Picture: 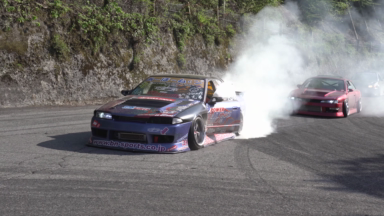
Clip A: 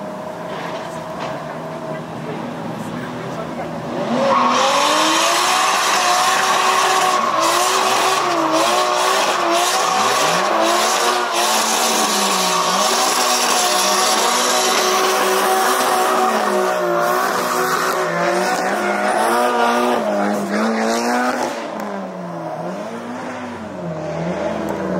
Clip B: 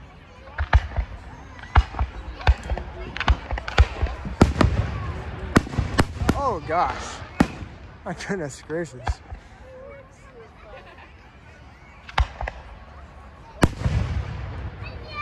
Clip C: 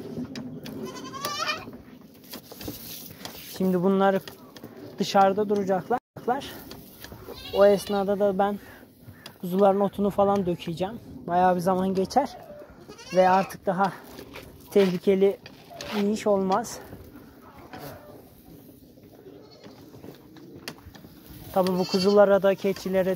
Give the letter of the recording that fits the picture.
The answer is A